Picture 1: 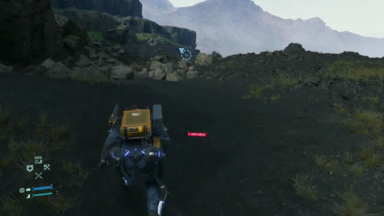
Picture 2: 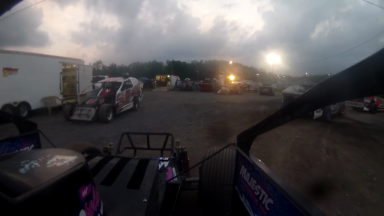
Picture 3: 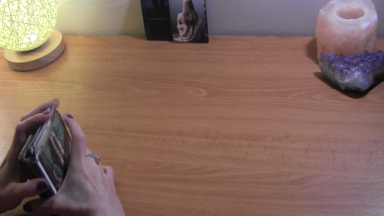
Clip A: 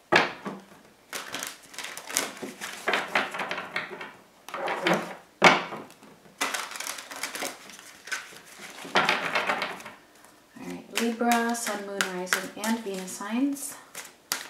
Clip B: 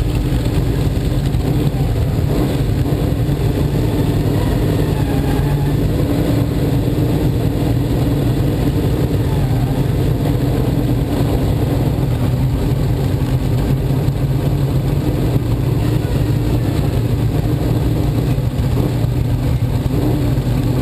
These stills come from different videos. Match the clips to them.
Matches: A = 3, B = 2